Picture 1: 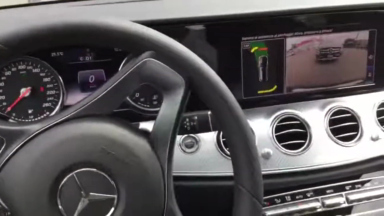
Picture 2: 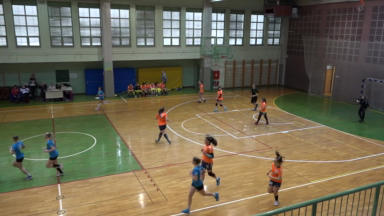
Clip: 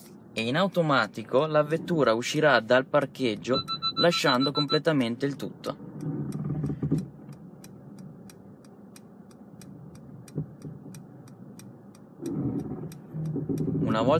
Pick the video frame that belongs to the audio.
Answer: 1